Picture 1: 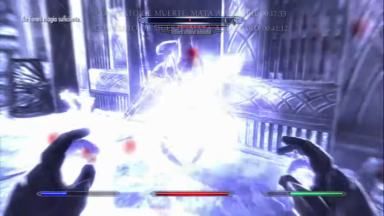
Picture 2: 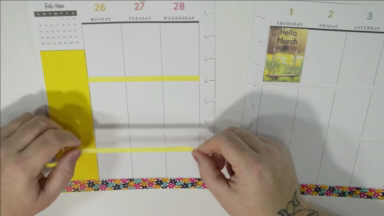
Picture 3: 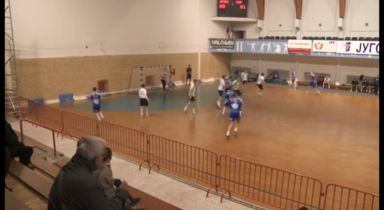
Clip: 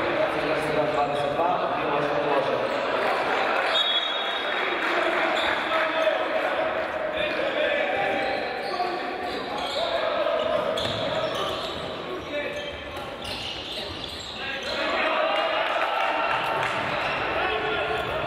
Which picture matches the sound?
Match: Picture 3